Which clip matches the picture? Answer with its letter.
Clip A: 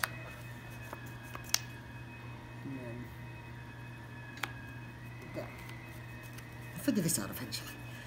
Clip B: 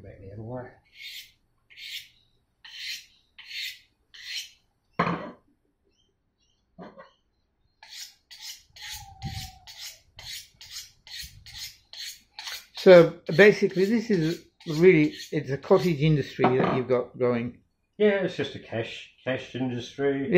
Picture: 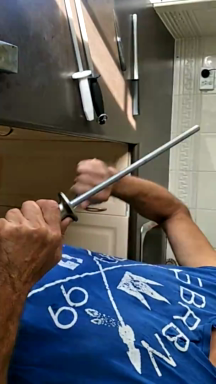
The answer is B